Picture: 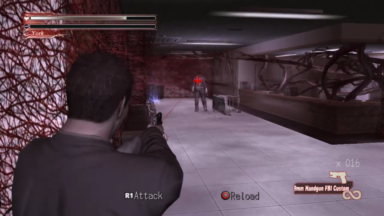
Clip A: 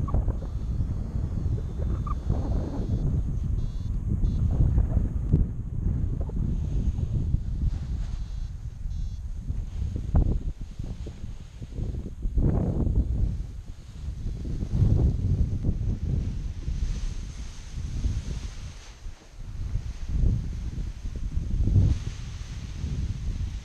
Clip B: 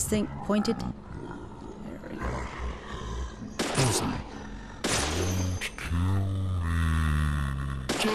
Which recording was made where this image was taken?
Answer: B